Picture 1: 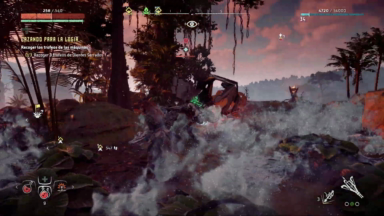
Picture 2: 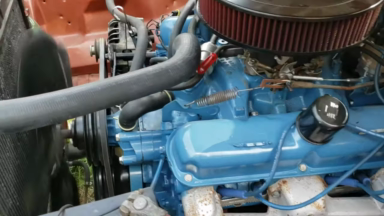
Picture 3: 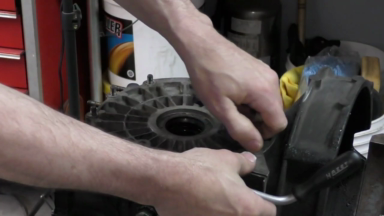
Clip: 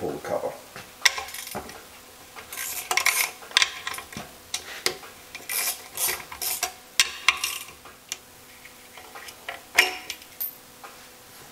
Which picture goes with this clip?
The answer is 3